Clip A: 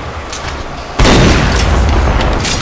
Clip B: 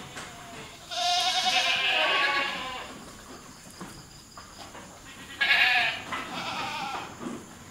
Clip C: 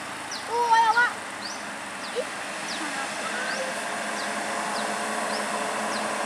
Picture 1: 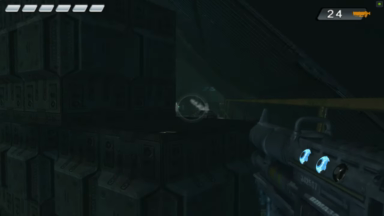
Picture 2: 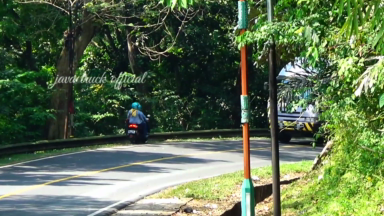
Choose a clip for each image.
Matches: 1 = A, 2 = C